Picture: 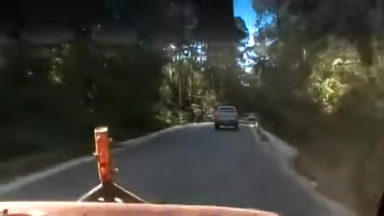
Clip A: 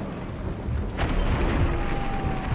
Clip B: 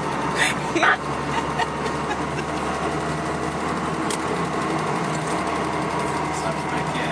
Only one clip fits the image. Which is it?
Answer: B